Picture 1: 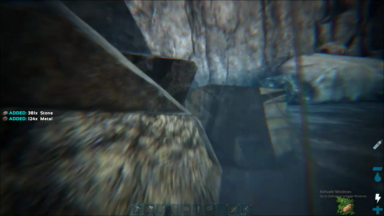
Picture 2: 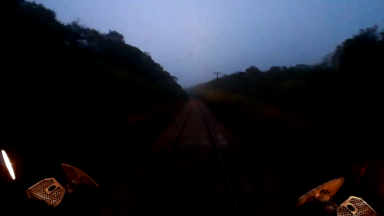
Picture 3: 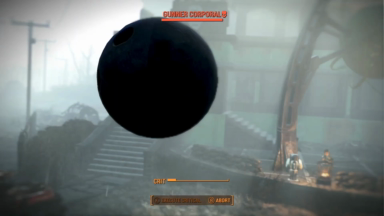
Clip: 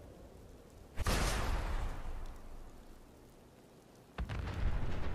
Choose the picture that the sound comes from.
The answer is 3